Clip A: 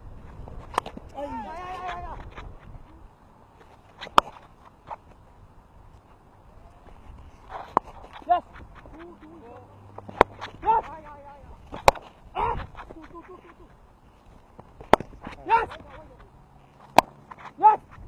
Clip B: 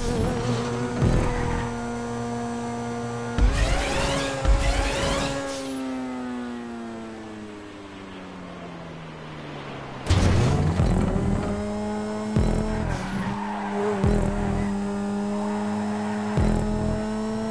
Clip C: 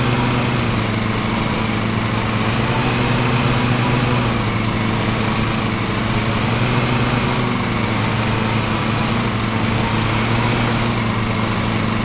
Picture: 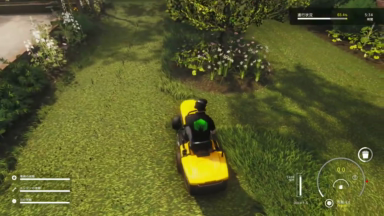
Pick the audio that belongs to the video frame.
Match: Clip C